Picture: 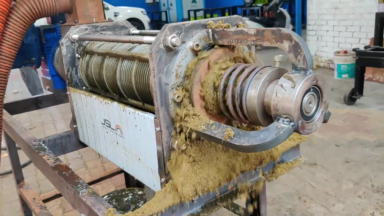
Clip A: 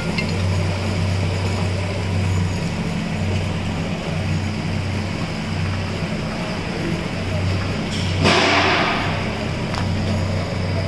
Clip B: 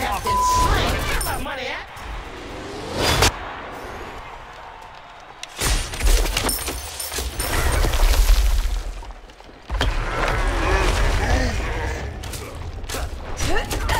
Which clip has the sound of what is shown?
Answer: A